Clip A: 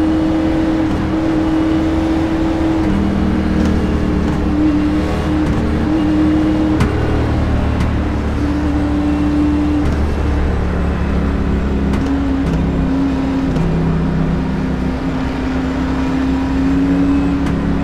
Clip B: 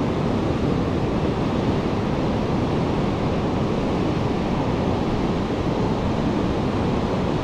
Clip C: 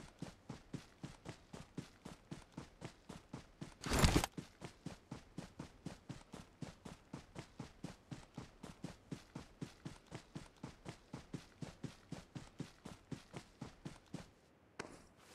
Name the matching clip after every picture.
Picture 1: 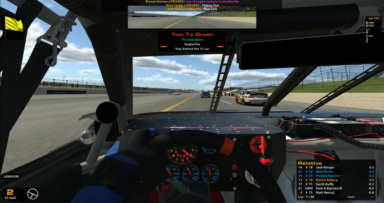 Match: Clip A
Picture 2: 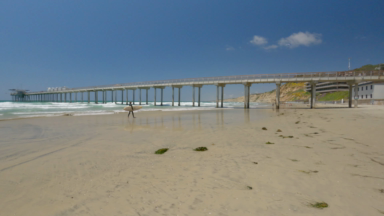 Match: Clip B